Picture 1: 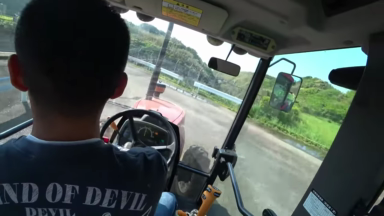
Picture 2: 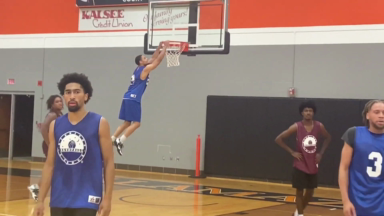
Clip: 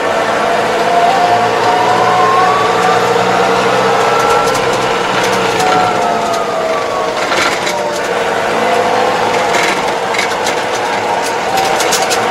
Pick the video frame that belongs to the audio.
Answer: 1